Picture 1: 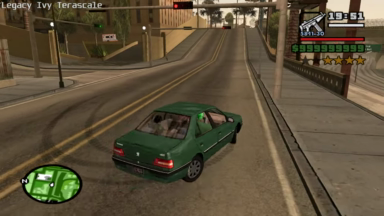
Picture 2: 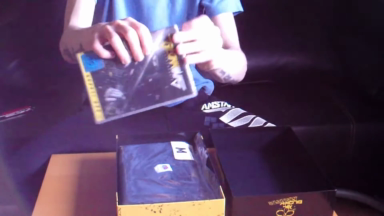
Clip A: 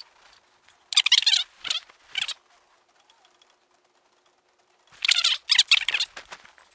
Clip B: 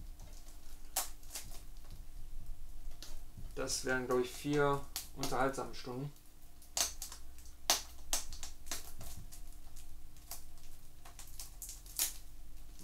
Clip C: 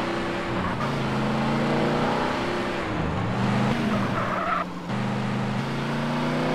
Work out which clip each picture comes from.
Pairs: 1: C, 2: B